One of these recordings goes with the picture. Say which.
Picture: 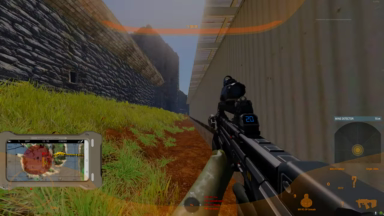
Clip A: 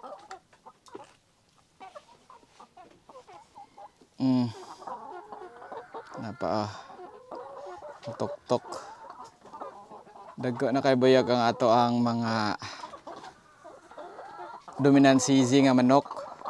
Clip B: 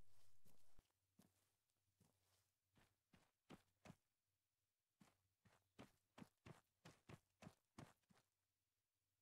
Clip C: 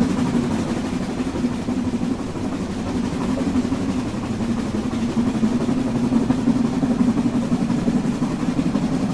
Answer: B